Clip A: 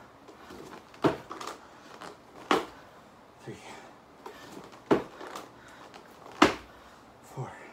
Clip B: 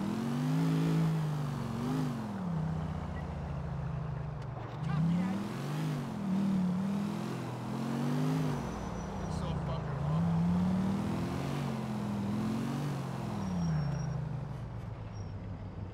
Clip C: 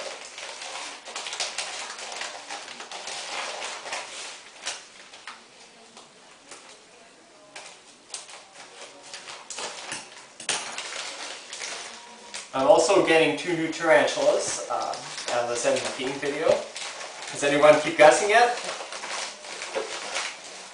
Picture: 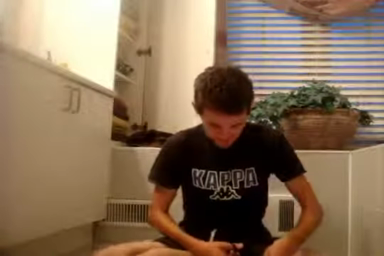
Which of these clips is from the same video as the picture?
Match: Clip C